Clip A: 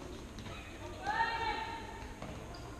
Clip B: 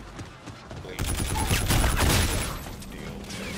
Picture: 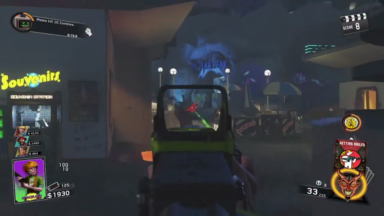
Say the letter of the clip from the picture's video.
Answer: B